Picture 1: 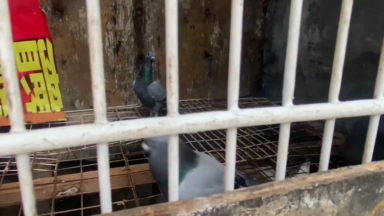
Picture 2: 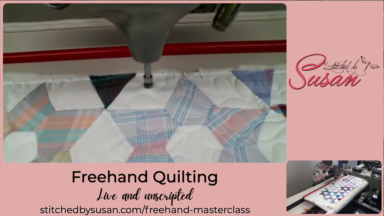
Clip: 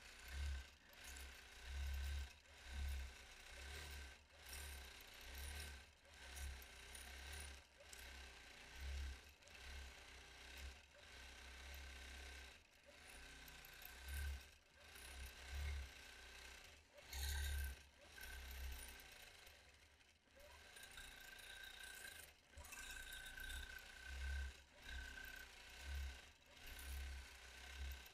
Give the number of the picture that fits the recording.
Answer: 2